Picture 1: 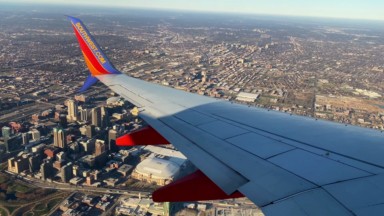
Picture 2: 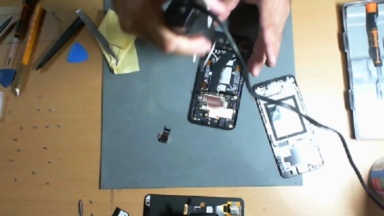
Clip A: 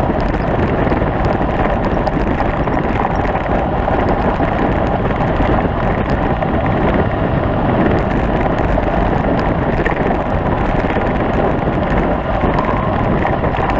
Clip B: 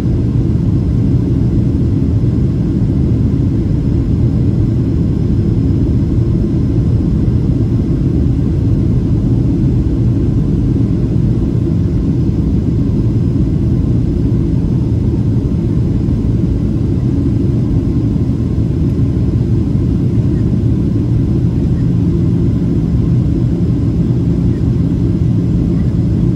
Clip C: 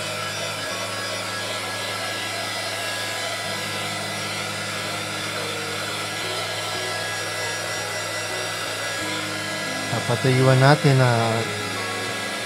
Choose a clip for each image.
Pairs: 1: B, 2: C